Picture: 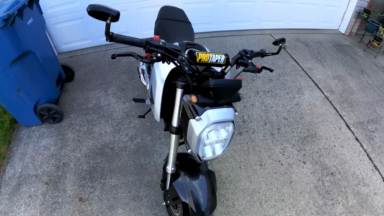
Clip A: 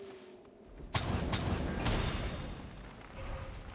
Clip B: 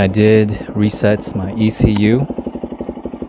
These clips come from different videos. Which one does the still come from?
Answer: B